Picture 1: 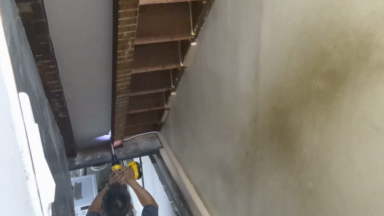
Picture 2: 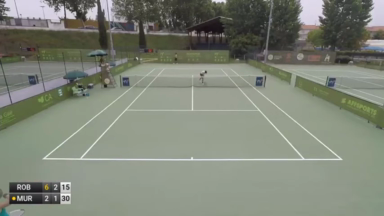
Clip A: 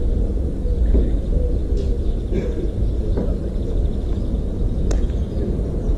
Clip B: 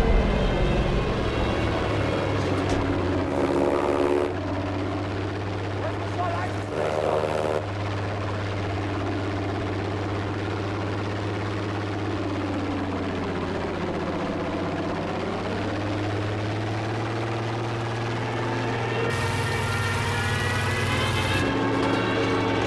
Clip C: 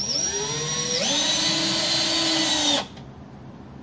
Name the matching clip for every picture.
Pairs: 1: C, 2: A